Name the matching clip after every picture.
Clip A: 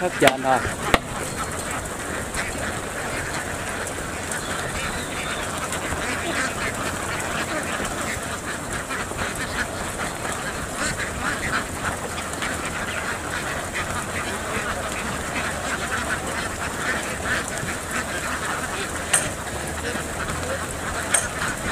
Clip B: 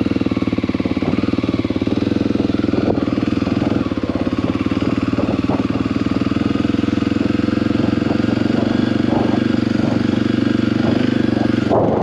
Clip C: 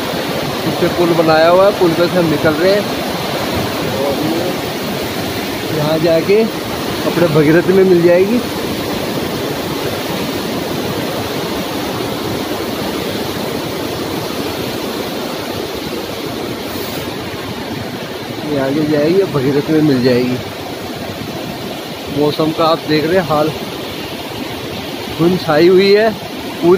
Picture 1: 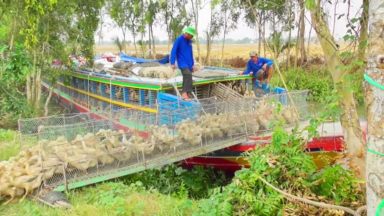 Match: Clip A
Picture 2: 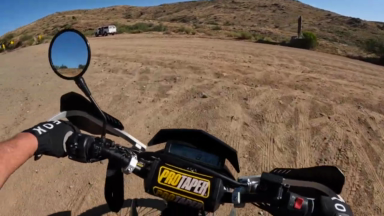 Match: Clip B